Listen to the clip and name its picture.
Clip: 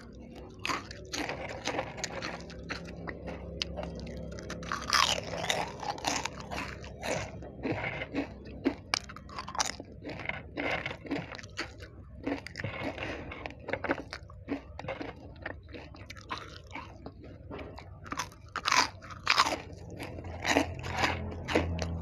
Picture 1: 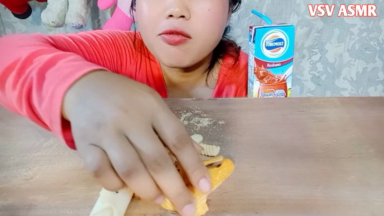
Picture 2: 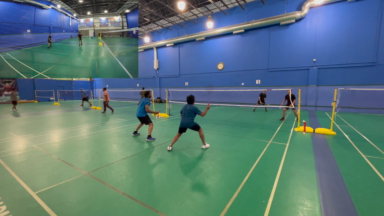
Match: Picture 1